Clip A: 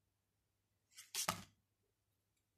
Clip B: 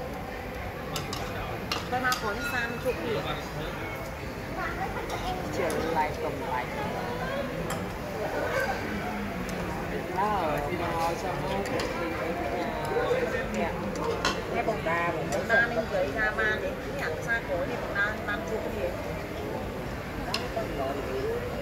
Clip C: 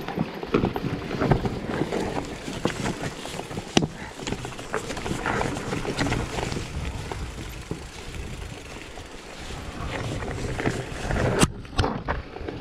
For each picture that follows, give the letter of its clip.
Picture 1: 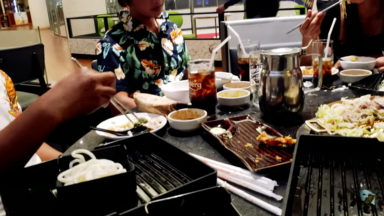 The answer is B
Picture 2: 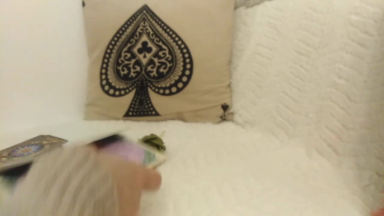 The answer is A